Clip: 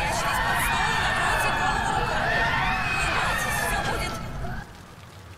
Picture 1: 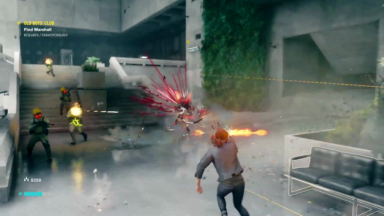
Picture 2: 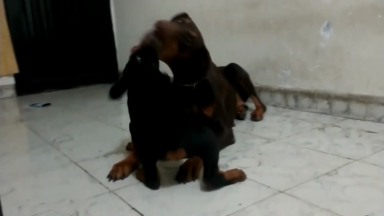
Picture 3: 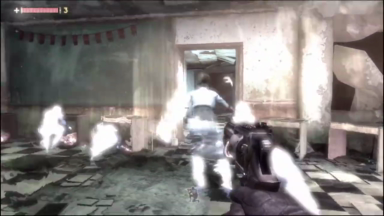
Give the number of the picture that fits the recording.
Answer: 3